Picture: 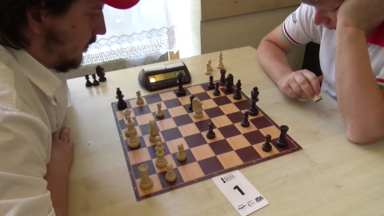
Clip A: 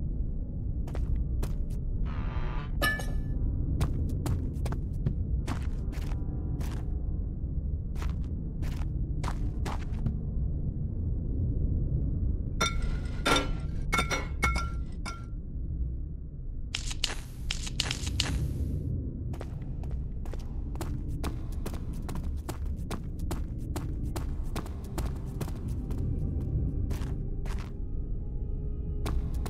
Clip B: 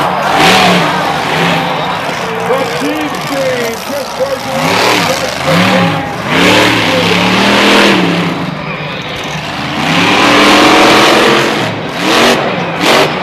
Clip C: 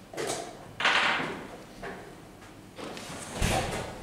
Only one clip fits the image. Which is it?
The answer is C